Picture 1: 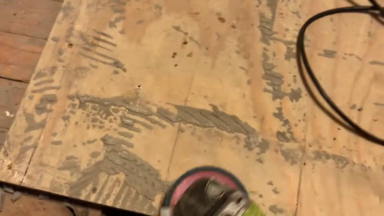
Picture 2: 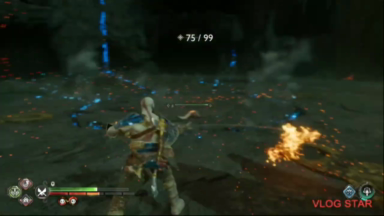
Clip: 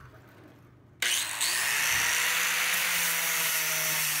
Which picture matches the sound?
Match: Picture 1